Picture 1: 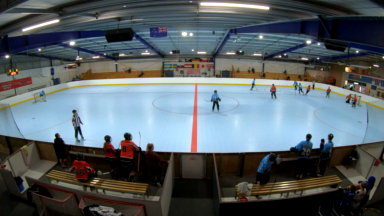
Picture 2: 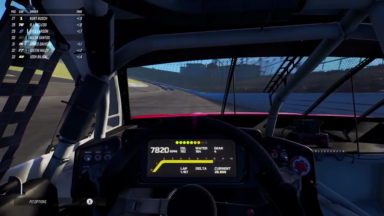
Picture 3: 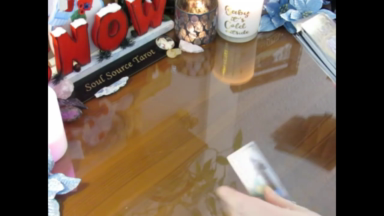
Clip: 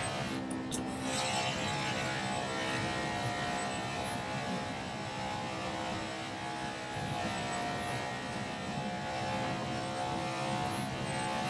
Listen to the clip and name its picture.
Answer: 2